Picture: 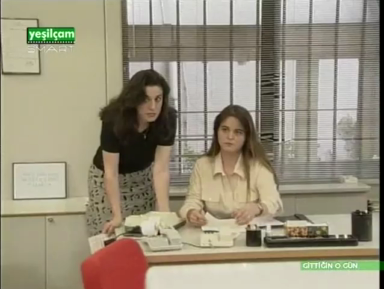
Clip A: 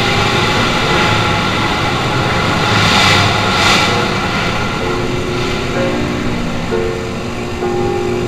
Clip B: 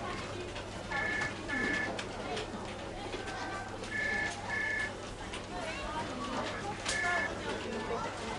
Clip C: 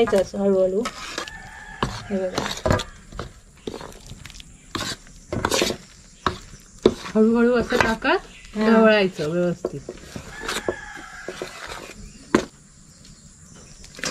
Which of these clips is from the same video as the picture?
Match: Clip B